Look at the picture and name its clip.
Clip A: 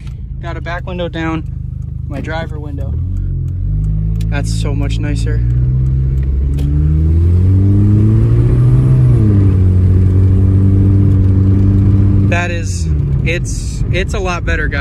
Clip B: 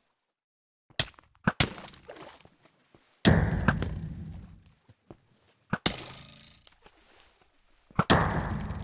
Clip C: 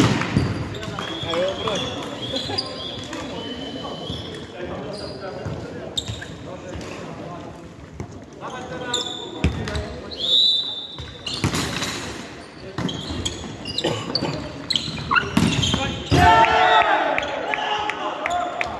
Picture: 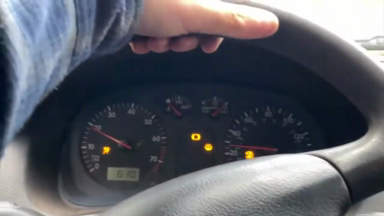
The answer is A